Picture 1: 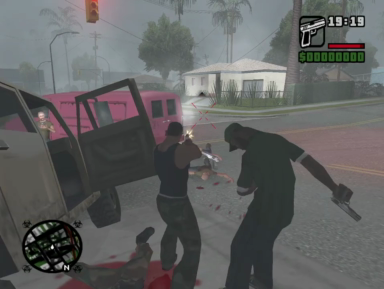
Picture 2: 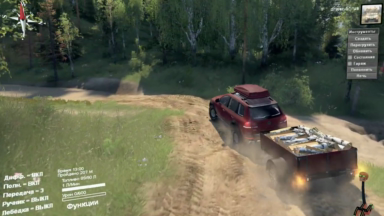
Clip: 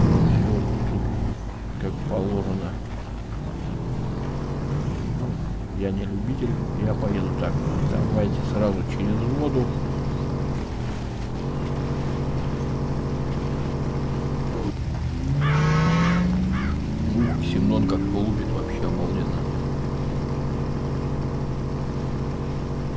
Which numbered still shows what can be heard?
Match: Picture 2